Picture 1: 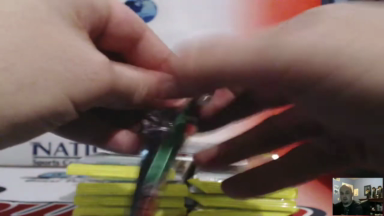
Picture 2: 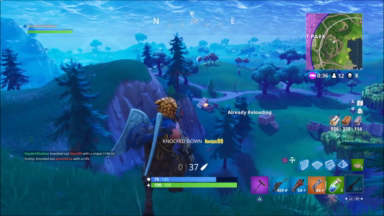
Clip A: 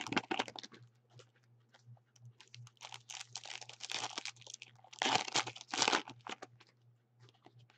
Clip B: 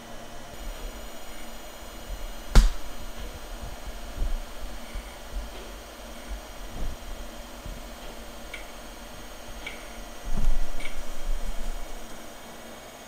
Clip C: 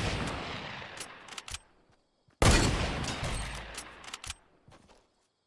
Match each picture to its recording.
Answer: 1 A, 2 C